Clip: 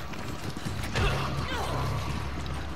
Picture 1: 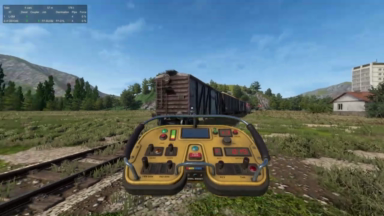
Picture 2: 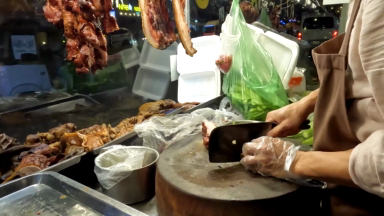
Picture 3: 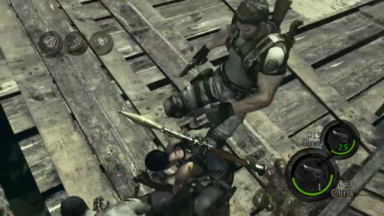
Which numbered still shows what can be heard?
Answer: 3